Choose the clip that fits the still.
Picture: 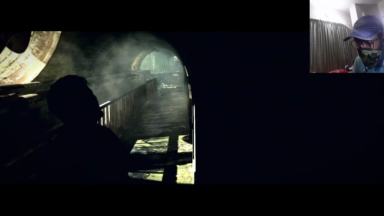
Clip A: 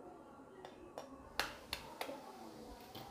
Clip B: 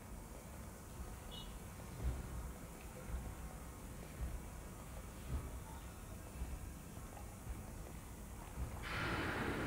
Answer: B